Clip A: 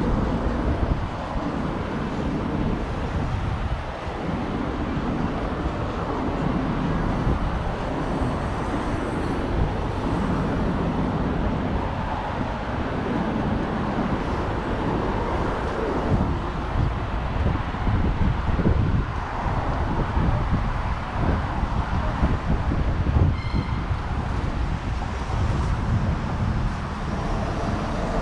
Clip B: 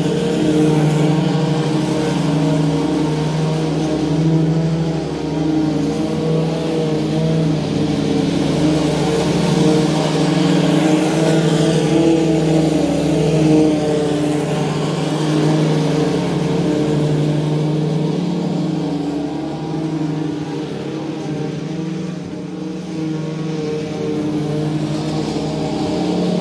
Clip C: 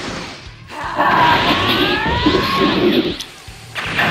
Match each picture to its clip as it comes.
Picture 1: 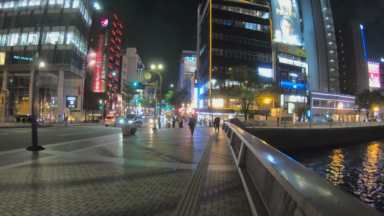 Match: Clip A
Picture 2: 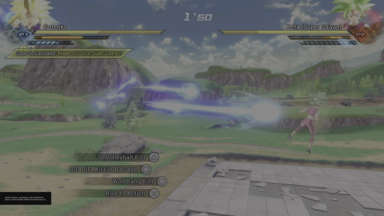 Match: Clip C